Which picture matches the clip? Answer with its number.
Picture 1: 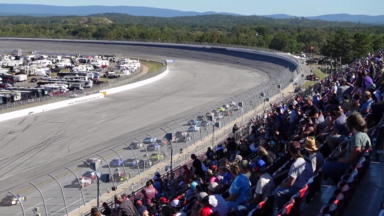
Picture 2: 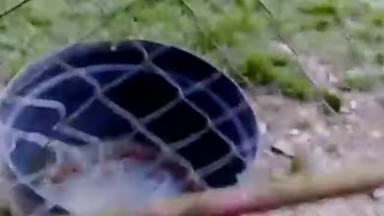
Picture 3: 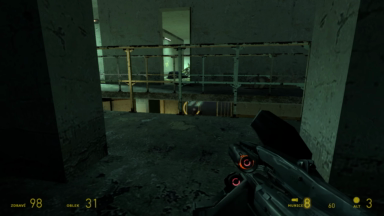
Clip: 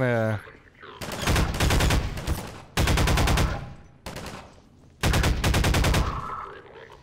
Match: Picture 3